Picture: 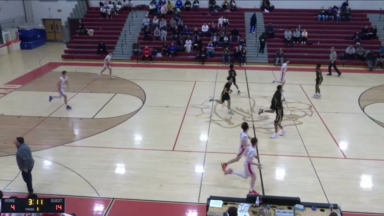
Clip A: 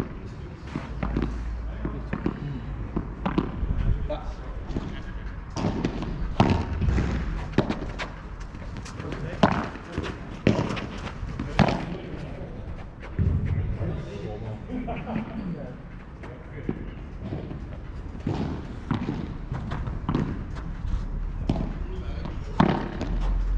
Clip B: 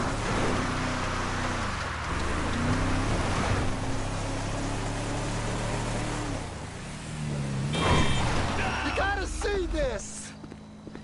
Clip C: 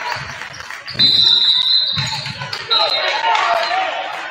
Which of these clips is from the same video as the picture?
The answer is C